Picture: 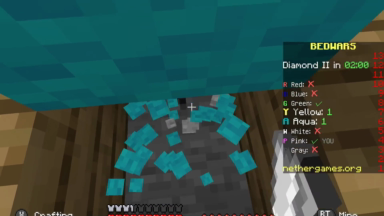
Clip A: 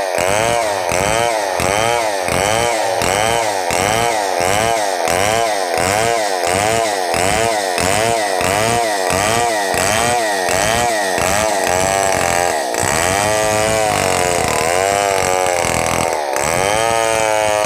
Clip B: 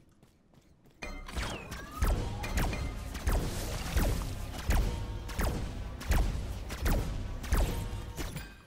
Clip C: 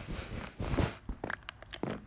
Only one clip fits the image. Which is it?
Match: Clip C